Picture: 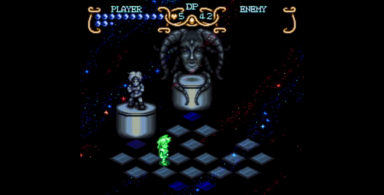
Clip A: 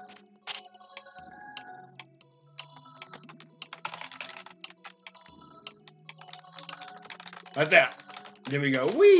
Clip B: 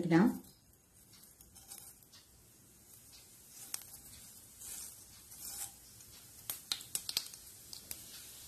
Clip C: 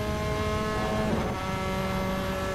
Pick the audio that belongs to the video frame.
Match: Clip A